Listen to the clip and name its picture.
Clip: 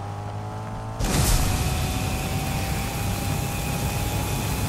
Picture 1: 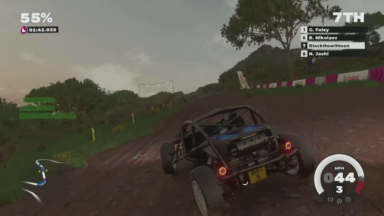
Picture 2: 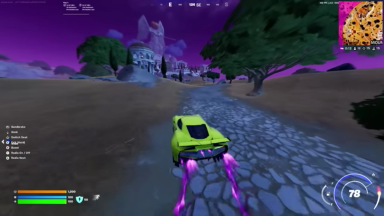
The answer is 2